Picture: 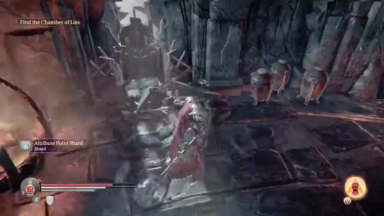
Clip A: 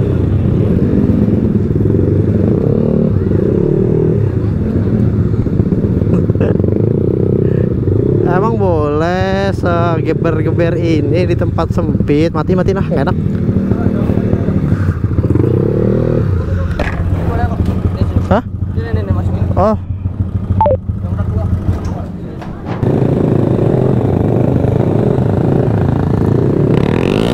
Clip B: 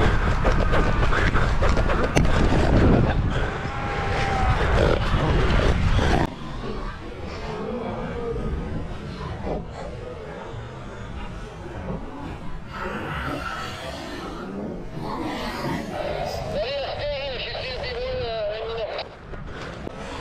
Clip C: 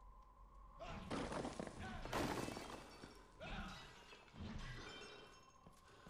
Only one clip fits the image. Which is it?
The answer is C